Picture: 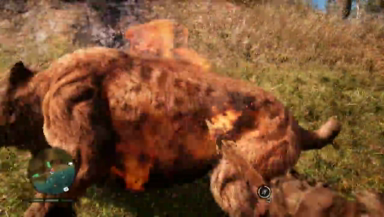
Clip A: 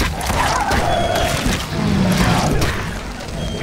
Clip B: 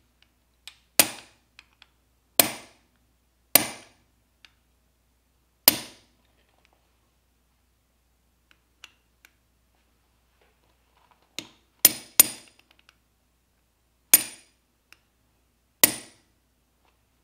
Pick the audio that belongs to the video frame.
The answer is A